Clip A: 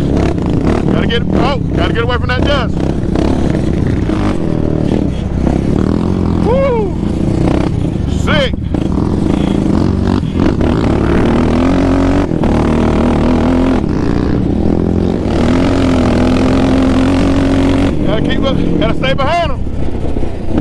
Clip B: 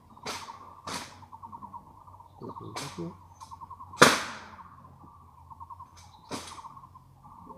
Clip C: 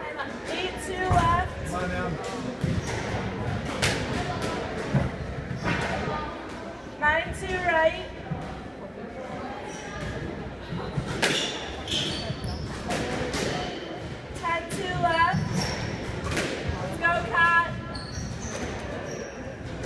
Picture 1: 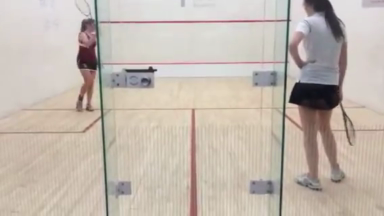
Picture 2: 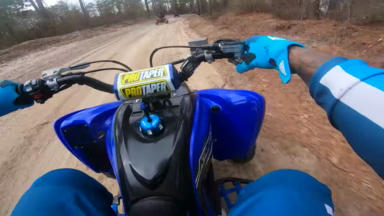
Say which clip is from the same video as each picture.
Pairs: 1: C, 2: A